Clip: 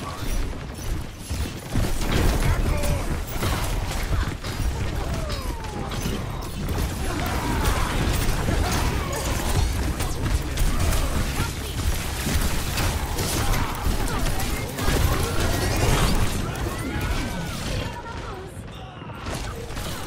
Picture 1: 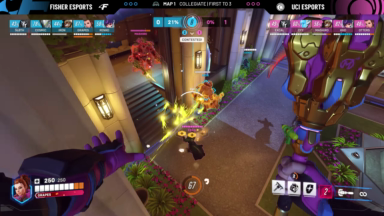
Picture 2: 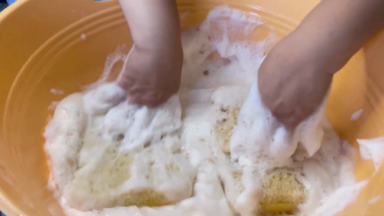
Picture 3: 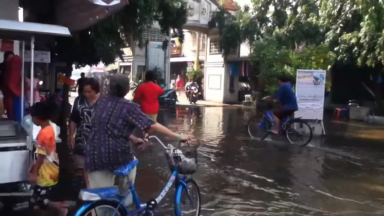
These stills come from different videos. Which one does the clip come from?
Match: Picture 1